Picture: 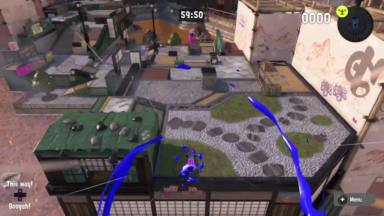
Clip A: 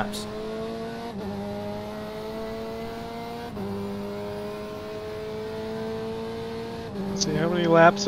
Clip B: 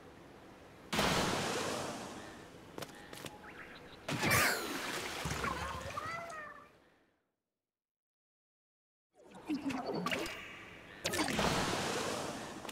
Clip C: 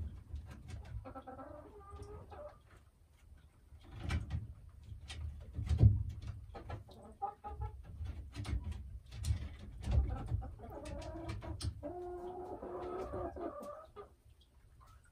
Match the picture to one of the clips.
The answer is B